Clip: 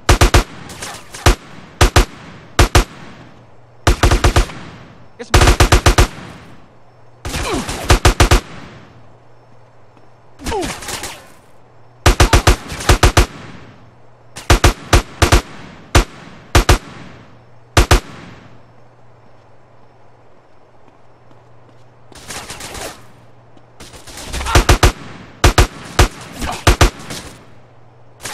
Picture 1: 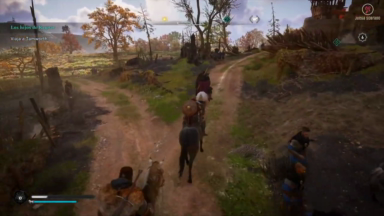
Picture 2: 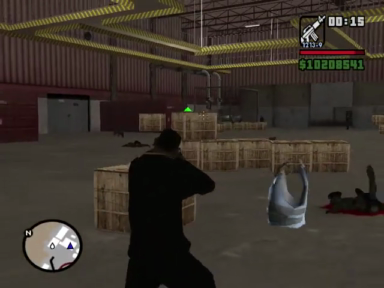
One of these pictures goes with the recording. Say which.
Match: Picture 2